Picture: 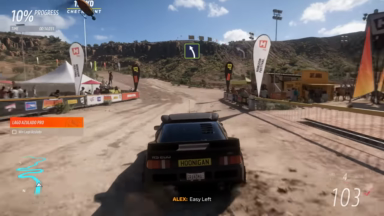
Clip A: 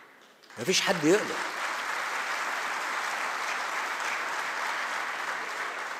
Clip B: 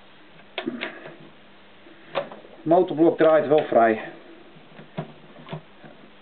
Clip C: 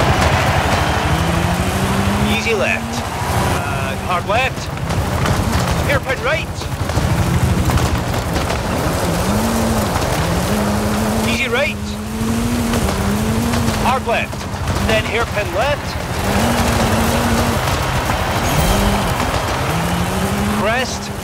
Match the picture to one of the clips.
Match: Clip C